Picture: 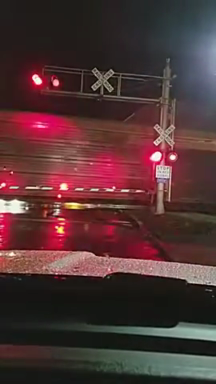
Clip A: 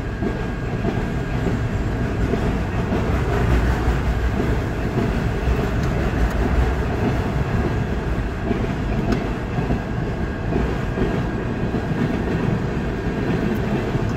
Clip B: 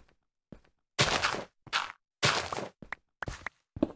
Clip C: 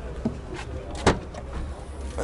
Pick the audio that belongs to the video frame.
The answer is A